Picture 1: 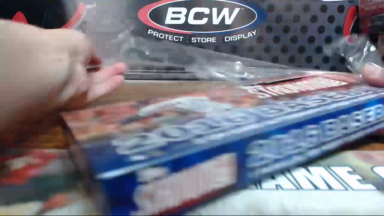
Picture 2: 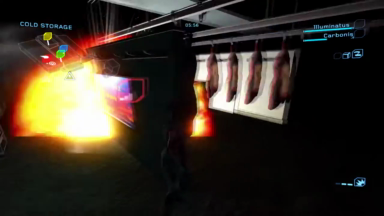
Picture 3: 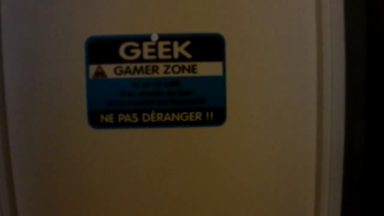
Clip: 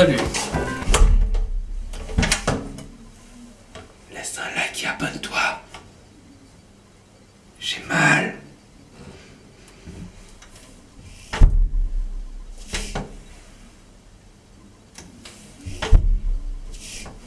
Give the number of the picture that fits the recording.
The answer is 3